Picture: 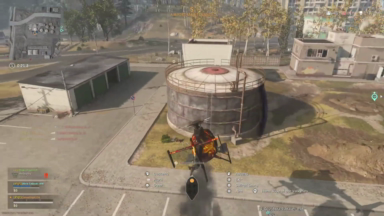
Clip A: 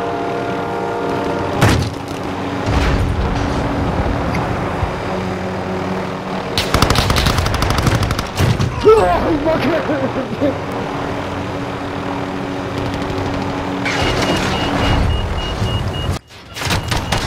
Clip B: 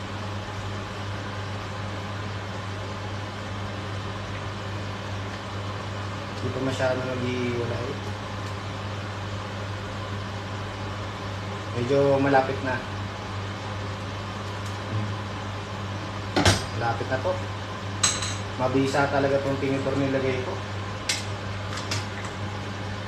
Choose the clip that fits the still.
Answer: A